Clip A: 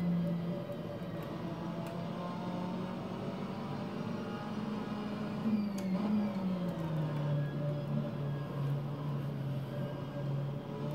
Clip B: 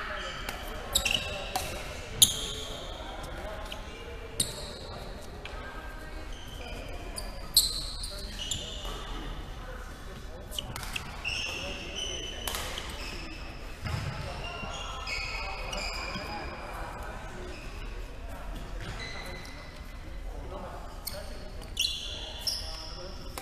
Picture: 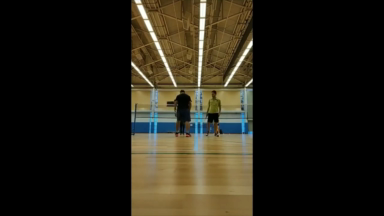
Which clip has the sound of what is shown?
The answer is B